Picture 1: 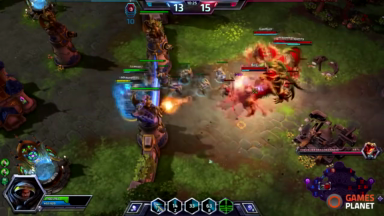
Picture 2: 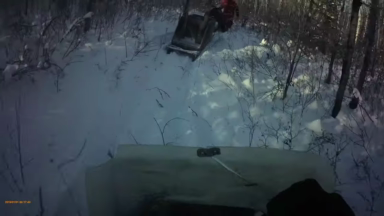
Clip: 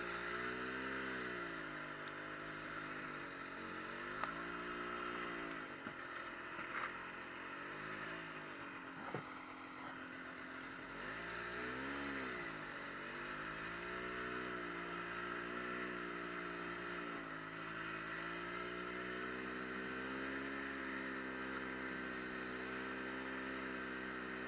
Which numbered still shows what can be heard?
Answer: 2